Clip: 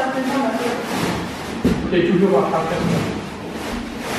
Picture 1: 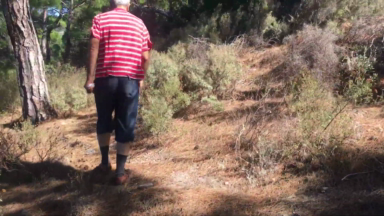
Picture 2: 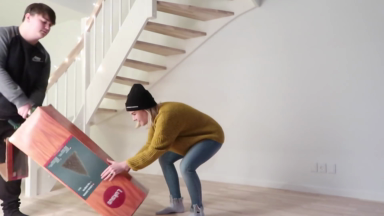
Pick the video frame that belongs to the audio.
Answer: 2